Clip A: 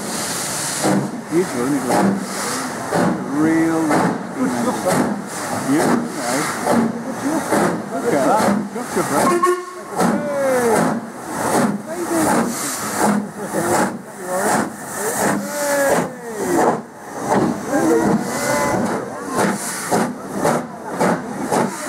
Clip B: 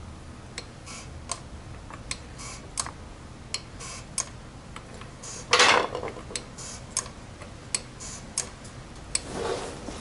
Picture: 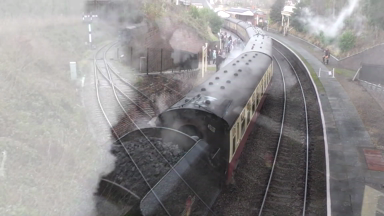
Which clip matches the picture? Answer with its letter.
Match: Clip A